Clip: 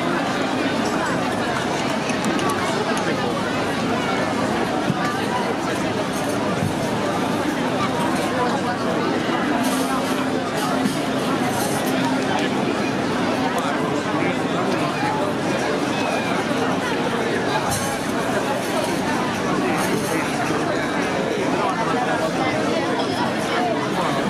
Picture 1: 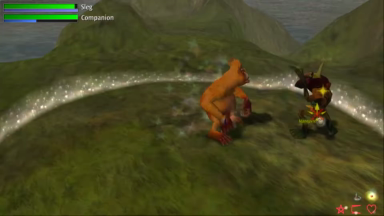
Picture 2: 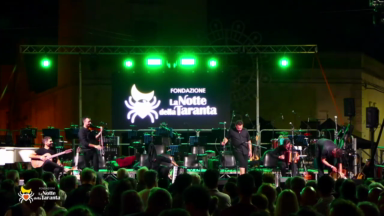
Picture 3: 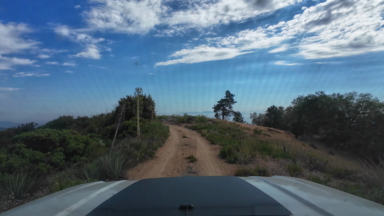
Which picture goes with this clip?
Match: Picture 2